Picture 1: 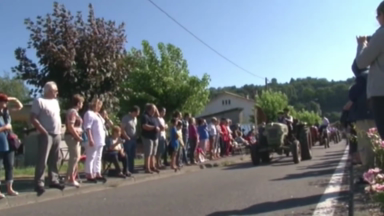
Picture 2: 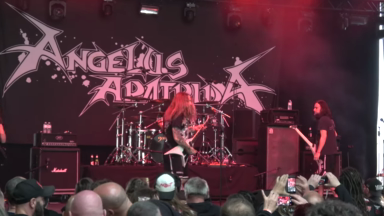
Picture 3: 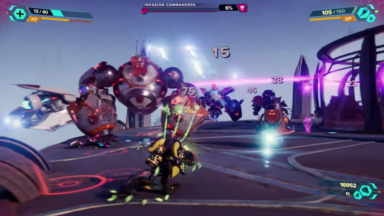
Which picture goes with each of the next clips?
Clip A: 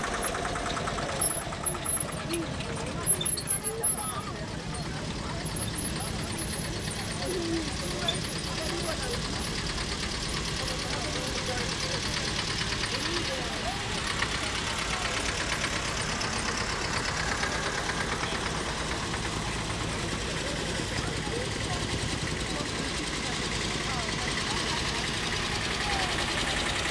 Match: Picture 1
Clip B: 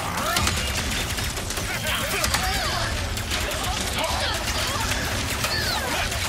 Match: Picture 3